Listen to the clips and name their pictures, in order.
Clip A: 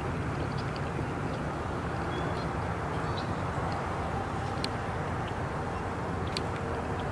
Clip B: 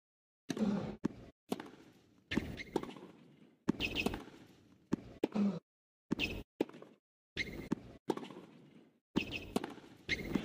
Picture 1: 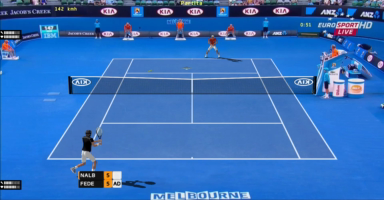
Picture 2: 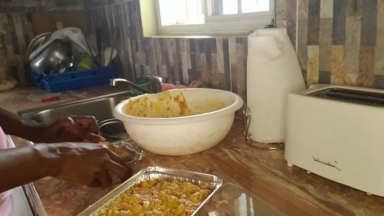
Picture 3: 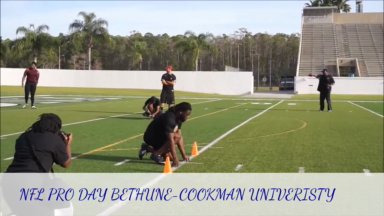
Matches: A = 3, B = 1